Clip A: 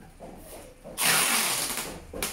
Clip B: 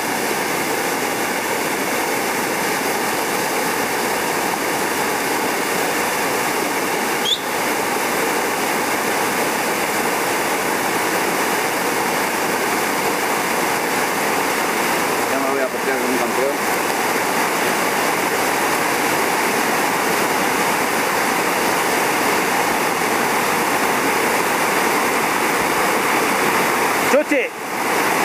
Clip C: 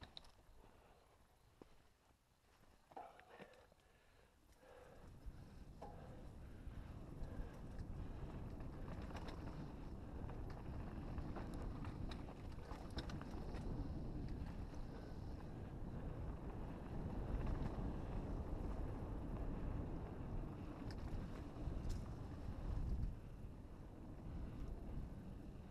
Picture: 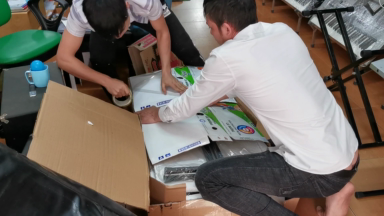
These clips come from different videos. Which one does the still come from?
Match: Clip A